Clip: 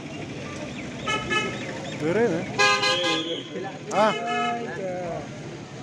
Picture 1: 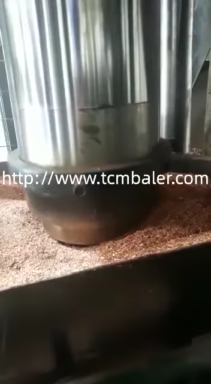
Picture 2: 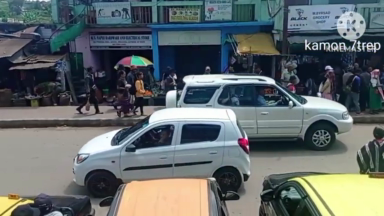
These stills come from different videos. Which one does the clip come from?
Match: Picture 2